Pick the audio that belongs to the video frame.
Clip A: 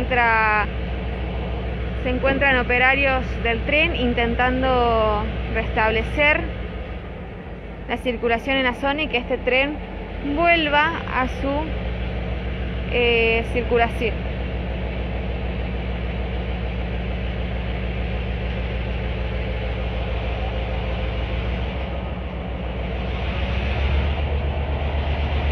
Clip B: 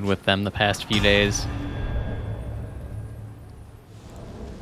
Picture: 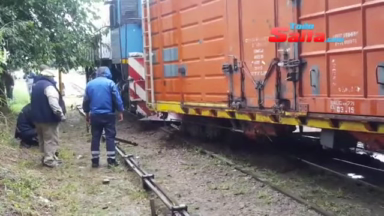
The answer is A